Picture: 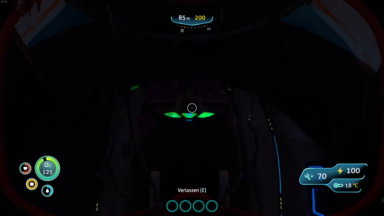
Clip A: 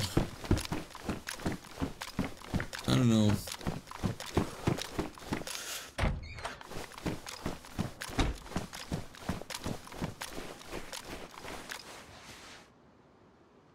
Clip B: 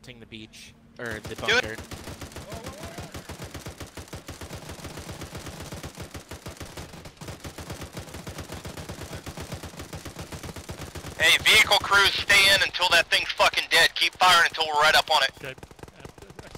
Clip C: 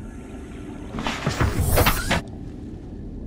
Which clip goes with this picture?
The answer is C